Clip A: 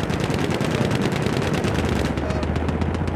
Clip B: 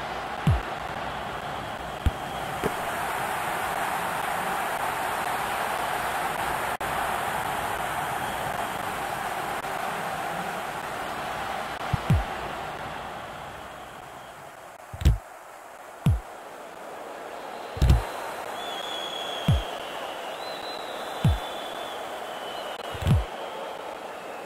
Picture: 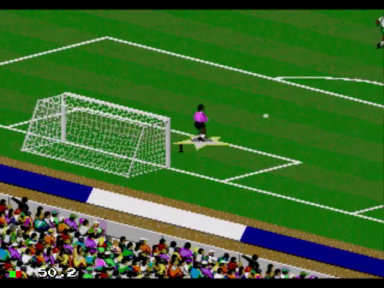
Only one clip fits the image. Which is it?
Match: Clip B